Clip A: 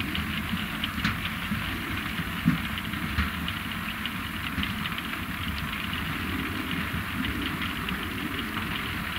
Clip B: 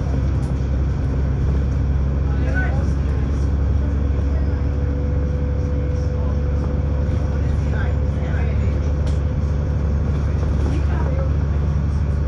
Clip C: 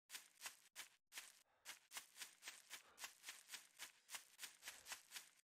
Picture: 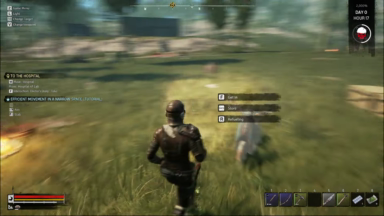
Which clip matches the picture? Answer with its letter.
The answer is C